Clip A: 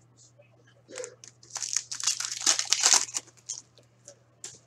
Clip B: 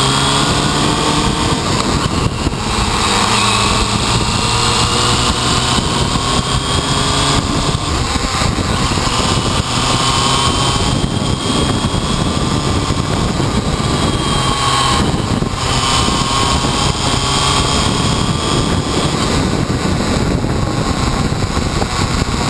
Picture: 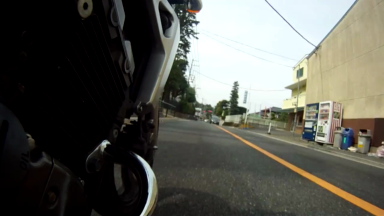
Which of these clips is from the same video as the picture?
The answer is B